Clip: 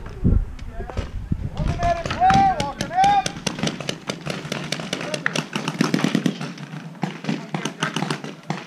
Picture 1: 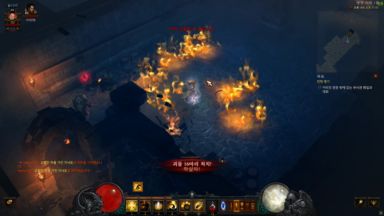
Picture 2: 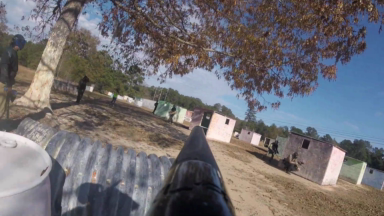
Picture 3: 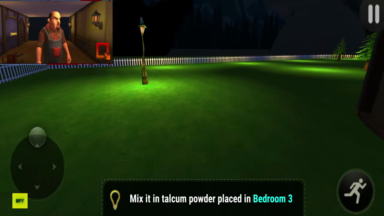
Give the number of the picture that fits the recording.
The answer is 2